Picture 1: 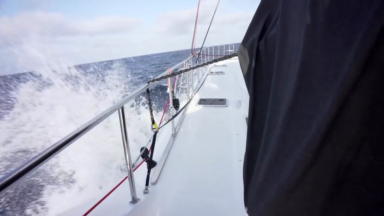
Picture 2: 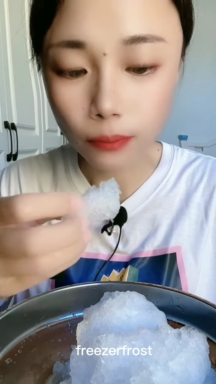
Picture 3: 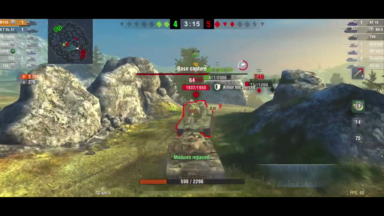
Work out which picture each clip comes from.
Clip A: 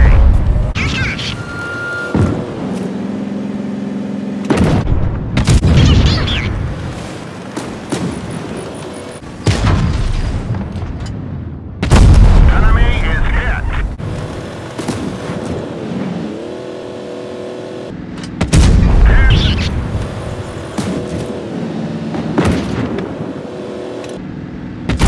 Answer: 3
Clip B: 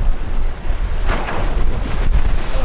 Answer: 1